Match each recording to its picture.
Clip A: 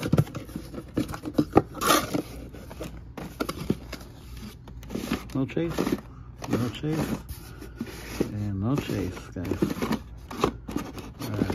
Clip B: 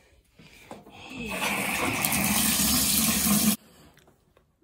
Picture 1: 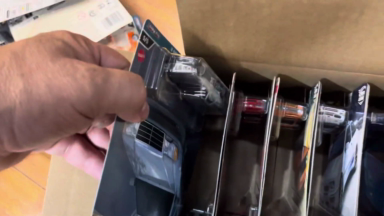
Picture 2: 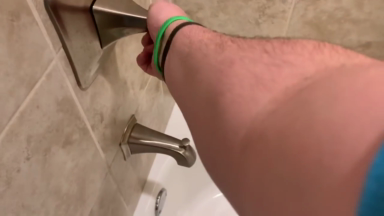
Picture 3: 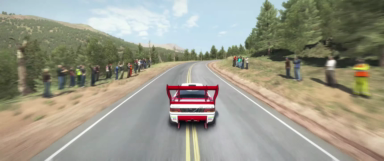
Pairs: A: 1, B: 2